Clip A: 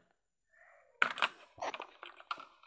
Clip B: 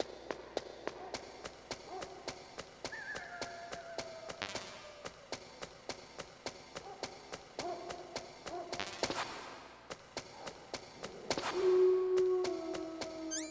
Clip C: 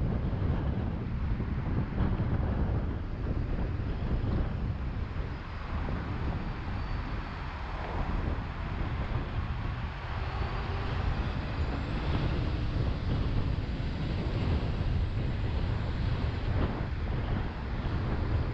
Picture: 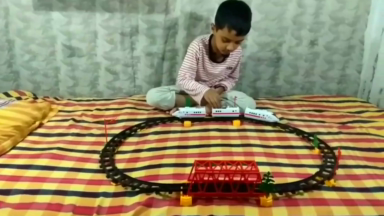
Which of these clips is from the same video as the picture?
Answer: A